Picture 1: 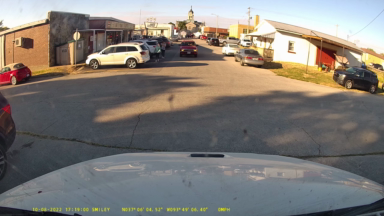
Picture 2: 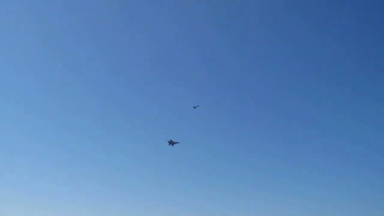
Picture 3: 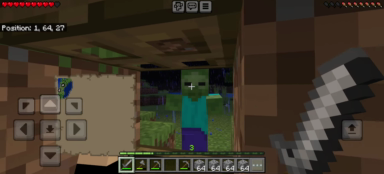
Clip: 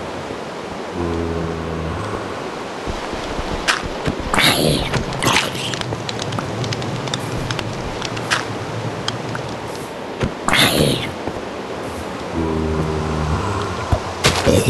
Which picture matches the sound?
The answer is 3